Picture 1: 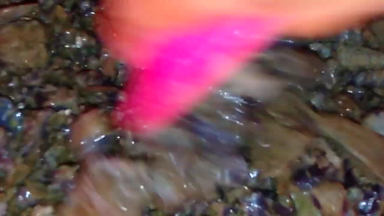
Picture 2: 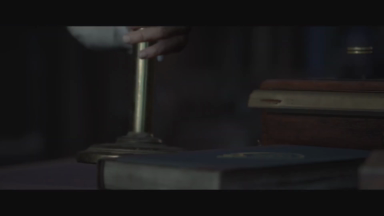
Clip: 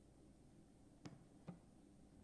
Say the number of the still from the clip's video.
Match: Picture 2